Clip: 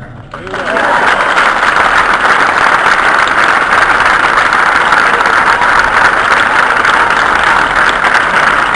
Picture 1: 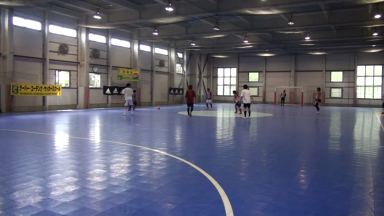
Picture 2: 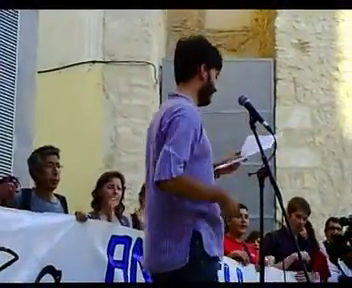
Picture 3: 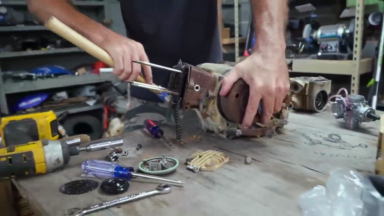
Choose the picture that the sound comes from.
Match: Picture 2